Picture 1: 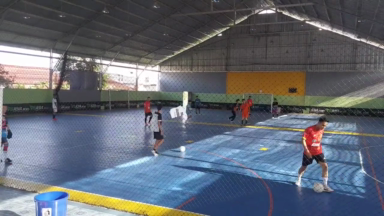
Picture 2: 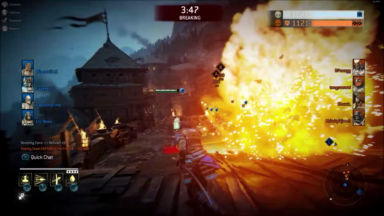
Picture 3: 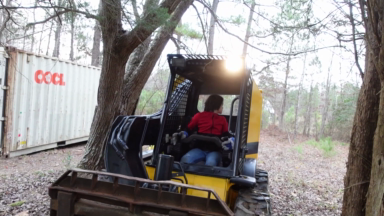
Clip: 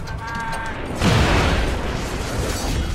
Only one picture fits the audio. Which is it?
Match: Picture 2